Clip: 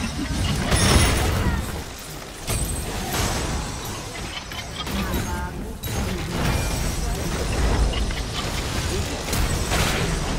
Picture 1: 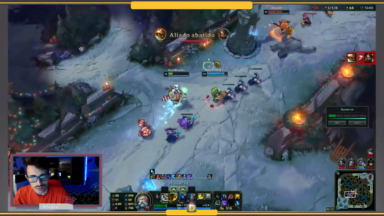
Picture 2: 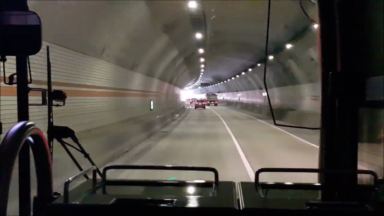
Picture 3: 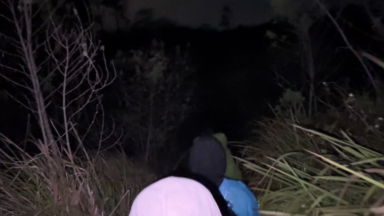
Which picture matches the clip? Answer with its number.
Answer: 1